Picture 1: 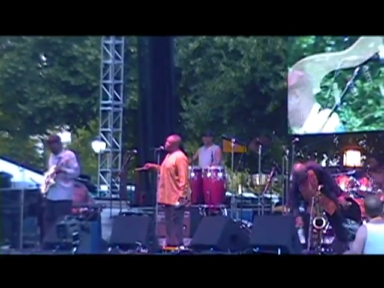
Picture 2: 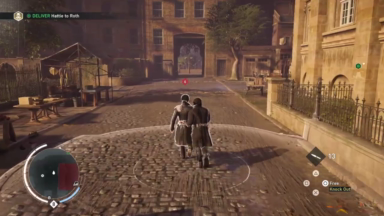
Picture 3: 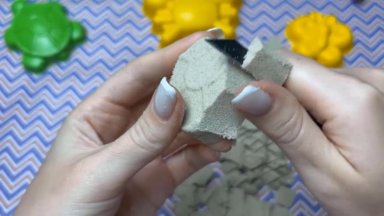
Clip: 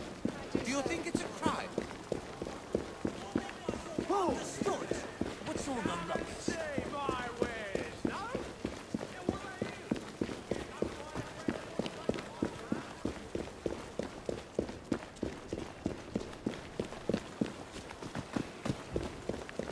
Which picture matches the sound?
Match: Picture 2